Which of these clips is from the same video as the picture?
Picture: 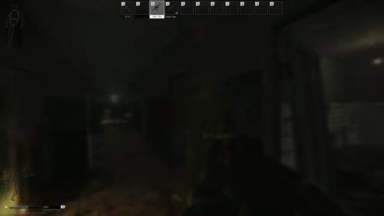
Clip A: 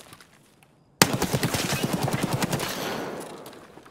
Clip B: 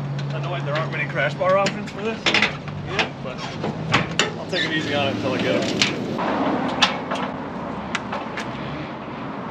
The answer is A